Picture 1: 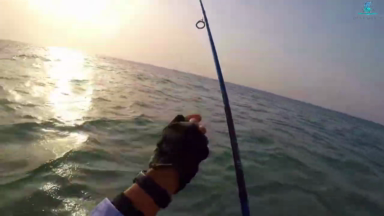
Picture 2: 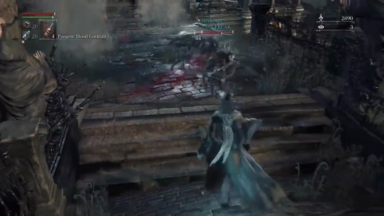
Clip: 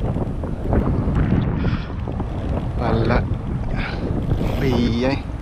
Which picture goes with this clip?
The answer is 1